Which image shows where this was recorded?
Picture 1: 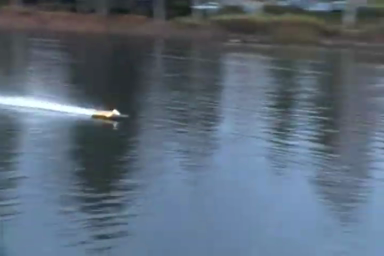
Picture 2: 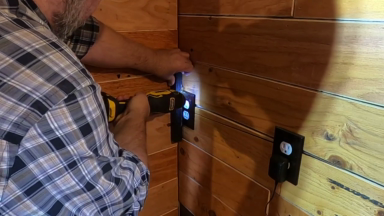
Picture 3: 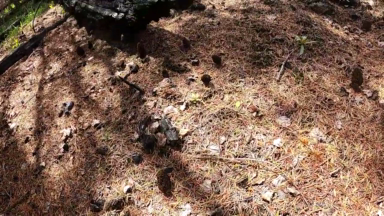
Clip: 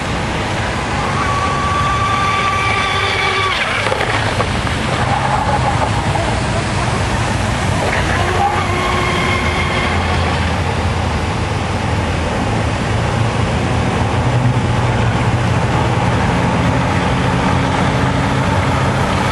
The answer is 1